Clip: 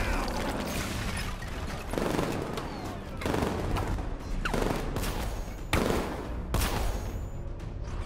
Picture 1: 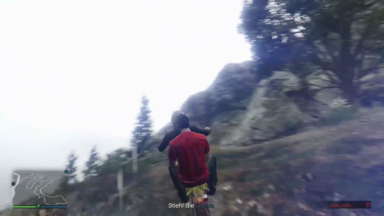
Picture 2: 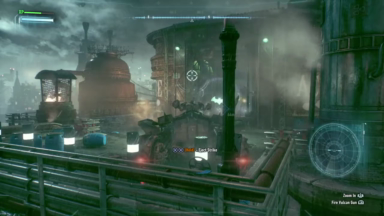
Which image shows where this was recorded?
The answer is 2